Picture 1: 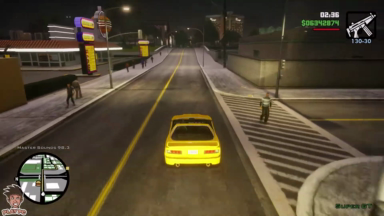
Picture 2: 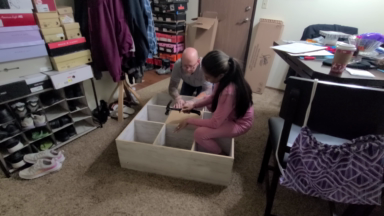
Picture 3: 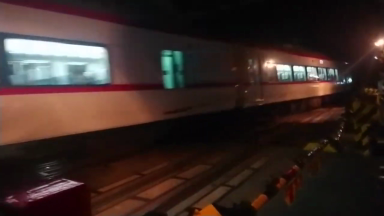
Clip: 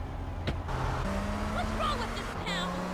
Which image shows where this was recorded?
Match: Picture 1